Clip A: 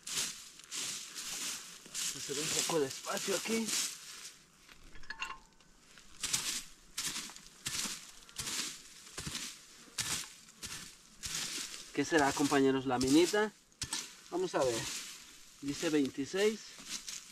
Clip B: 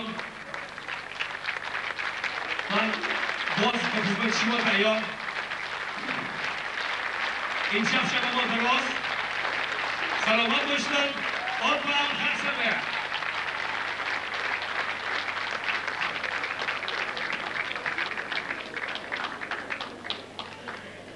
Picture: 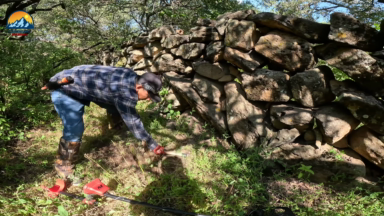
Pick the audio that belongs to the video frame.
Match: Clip A